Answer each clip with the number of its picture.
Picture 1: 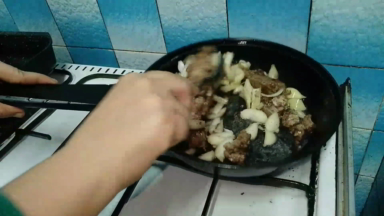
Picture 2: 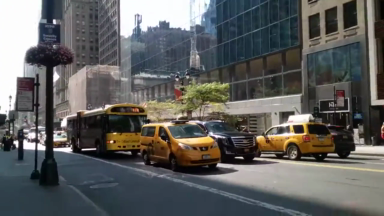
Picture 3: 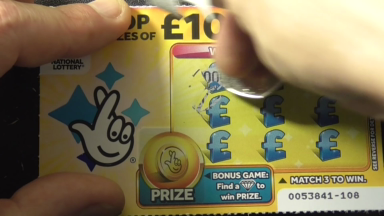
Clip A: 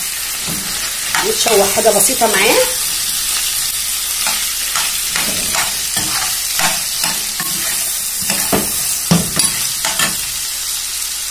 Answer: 1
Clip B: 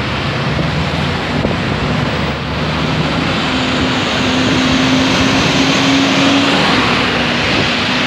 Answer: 2